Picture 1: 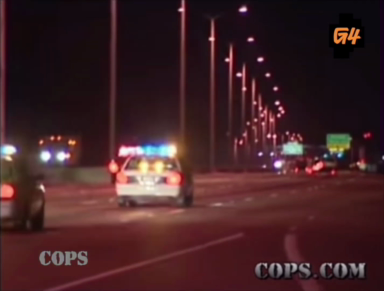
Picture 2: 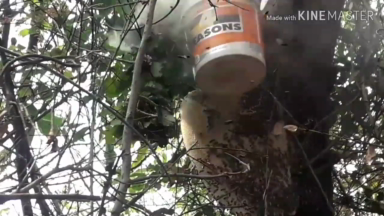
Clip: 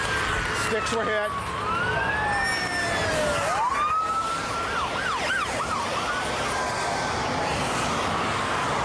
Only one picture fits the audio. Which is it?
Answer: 1